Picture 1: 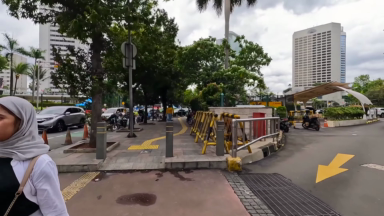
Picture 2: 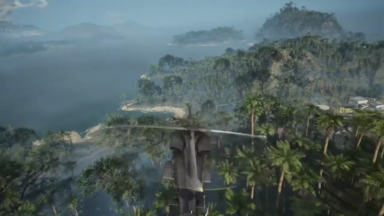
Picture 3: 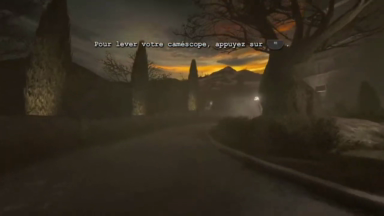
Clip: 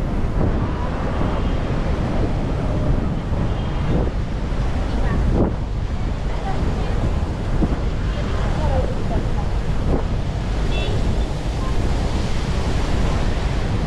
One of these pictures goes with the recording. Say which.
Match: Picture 1